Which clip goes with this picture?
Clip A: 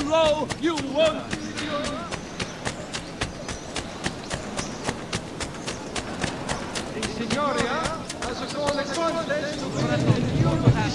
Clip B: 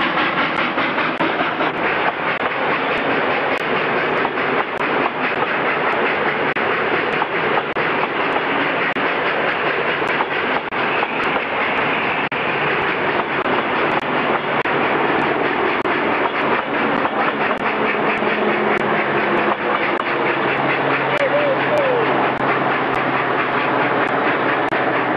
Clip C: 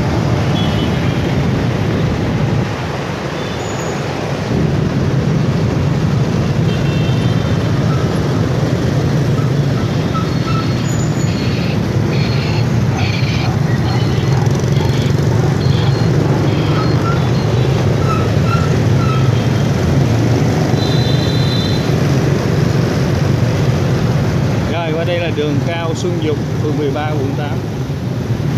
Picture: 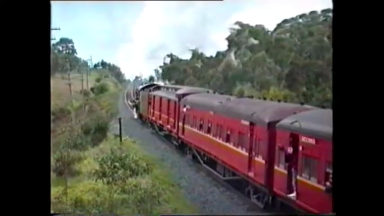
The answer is B